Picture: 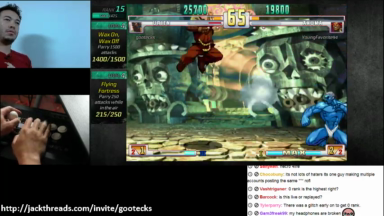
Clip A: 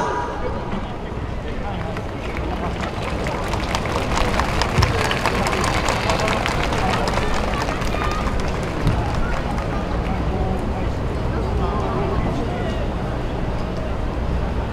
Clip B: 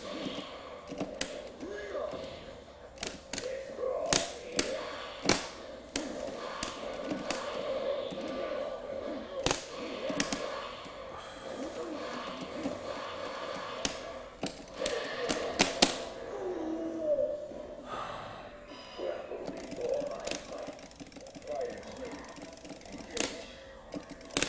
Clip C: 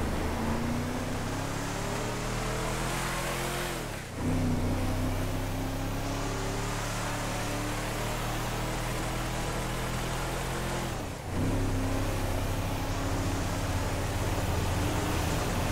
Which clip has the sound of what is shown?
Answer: B